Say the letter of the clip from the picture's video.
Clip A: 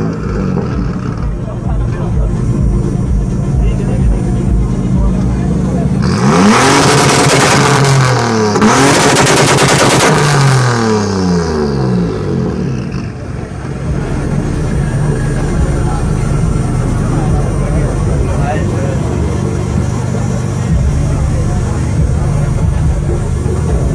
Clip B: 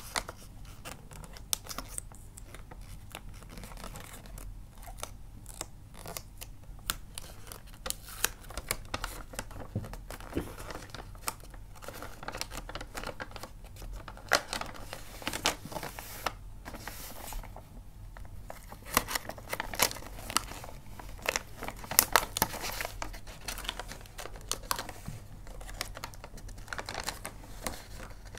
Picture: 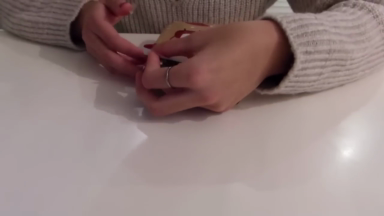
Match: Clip B